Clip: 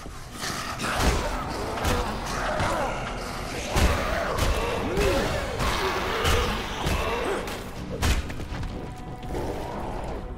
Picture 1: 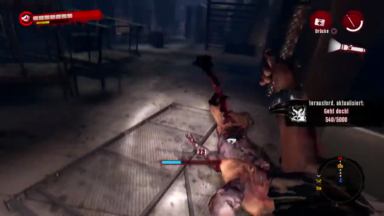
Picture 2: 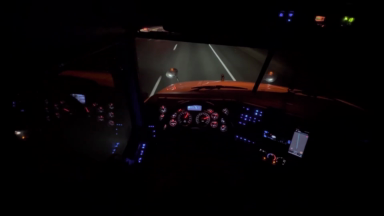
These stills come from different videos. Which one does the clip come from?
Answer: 1